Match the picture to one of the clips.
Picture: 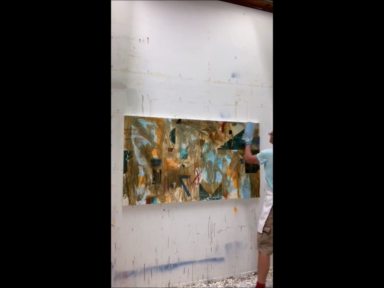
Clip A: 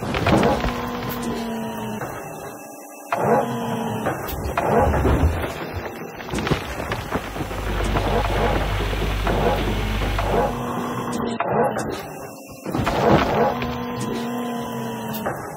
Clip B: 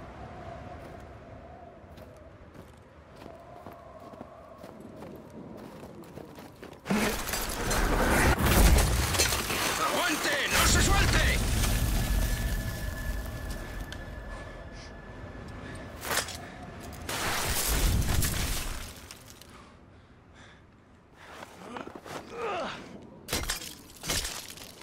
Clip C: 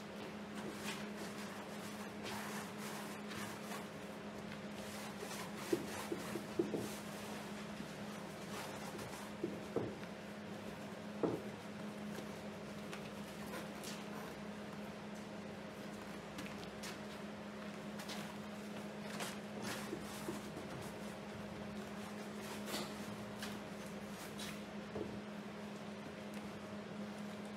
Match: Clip C